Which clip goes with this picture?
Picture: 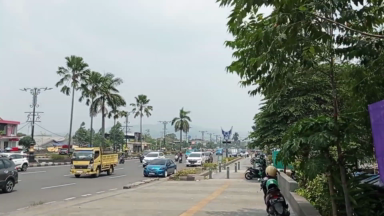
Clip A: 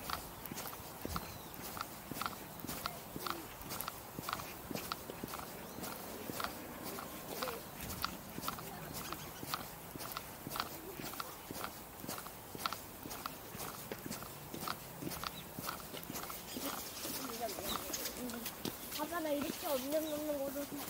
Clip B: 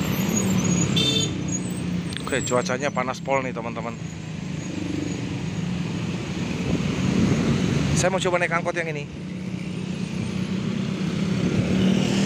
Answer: B